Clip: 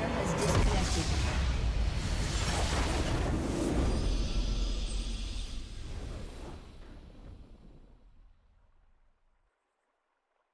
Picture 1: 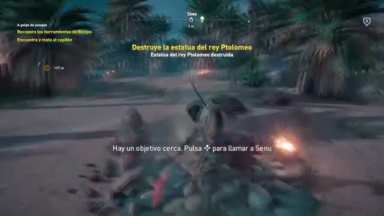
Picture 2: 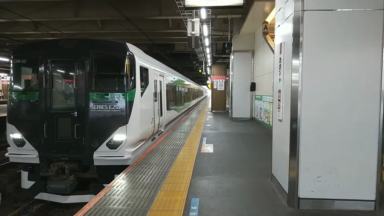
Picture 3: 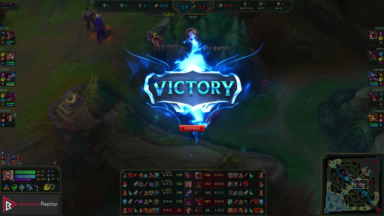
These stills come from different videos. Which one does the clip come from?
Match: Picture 3